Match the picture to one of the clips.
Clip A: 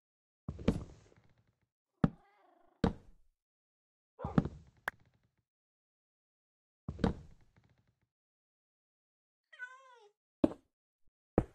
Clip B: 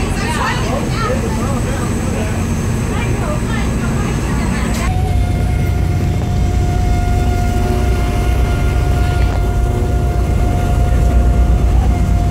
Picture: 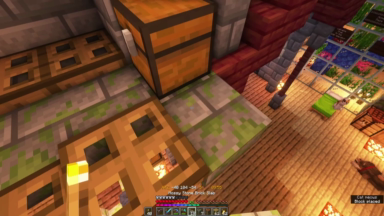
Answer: A